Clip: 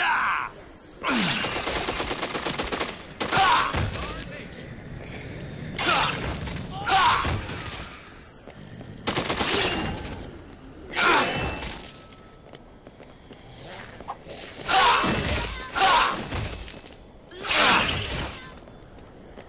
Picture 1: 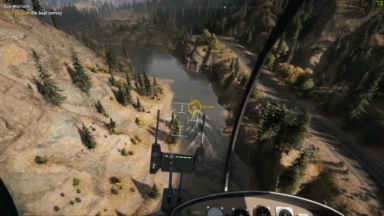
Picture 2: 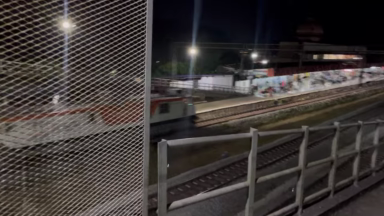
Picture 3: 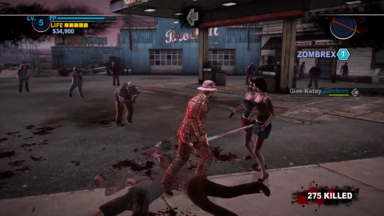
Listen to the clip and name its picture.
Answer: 3